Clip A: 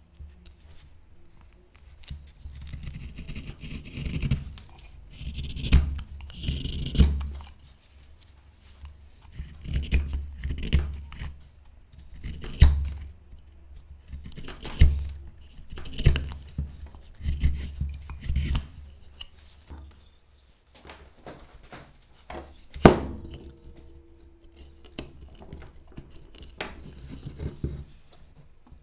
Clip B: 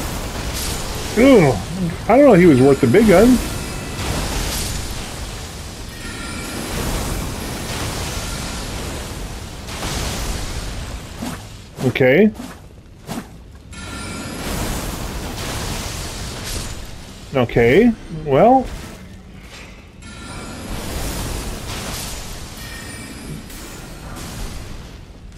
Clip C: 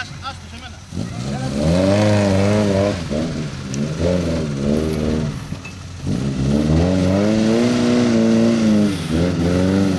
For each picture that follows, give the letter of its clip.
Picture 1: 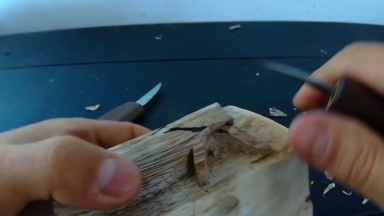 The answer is A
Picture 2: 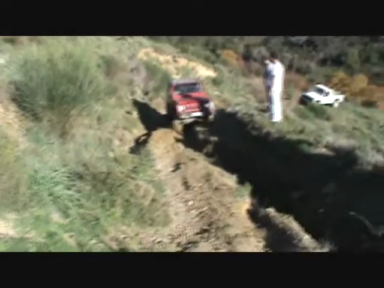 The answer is C